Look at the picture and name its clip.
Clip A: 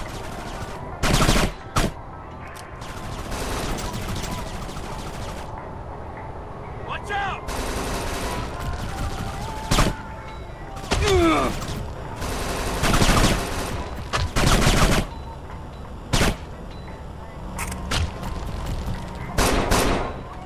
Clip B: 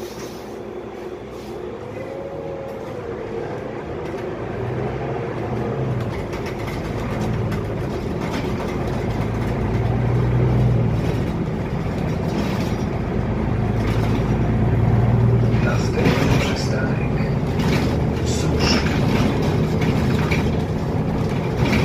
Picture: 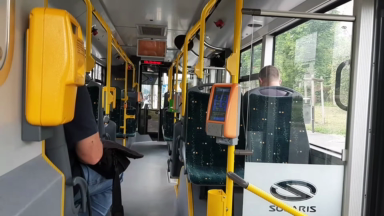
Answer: B